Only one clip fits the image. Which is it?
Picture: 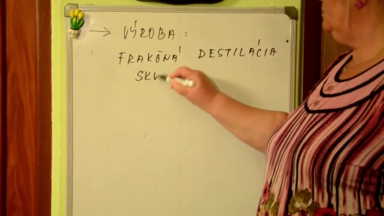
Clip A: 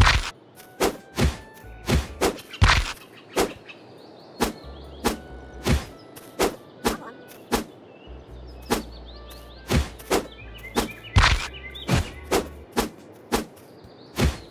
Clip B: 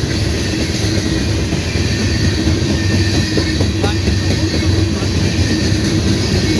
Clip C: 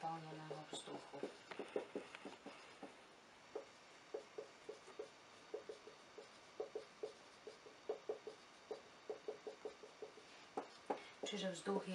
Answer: C